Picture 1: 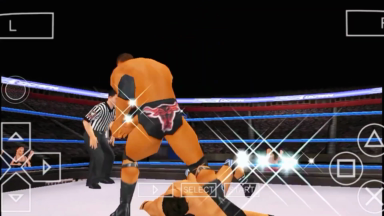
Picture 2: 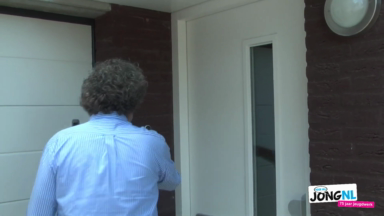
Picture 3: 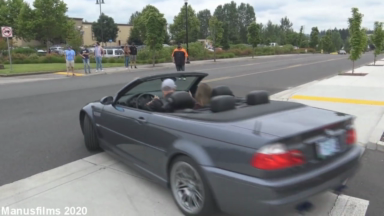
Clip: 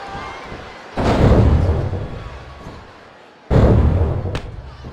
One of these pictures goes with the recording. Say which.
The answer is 1